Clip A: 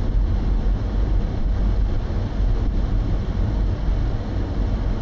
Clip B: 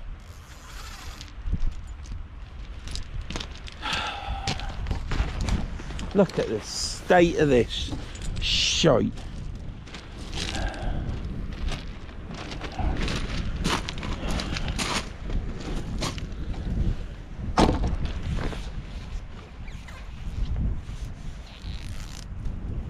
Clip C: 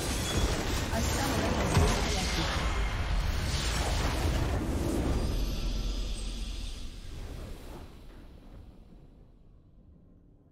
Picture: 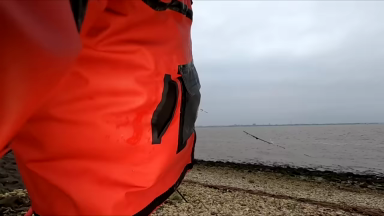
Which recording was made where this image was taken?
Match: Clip B